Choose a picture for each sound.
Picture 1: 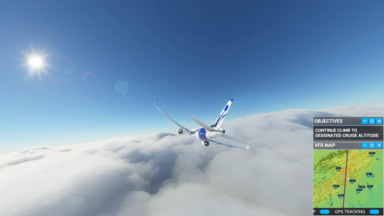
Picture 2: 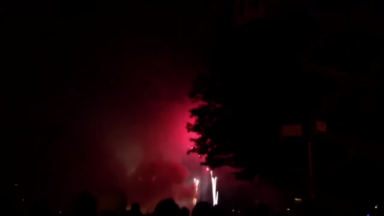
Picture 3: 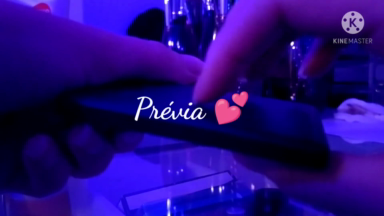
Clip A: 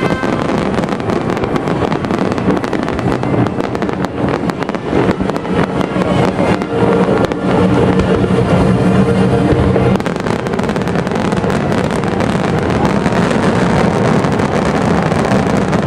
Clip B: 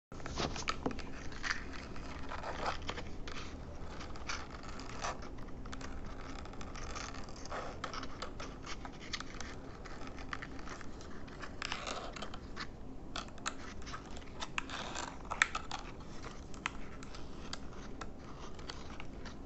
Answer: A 2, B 3